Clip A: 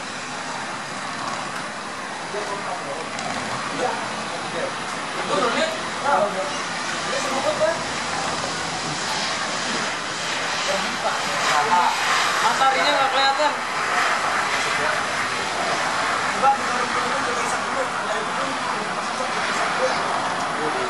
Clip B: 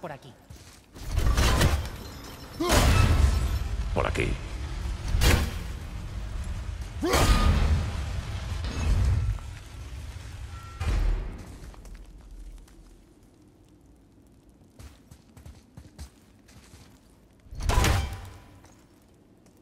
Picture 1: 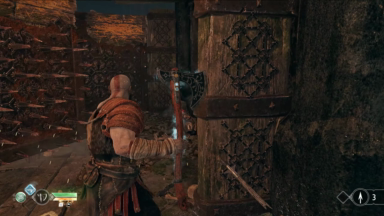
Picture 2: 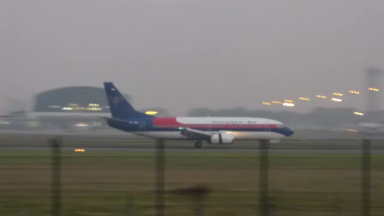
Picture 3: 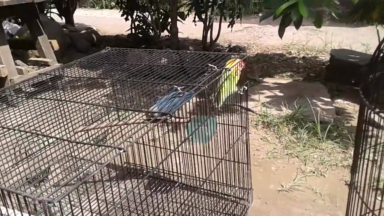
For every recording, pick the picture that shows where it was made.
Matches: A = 2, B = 1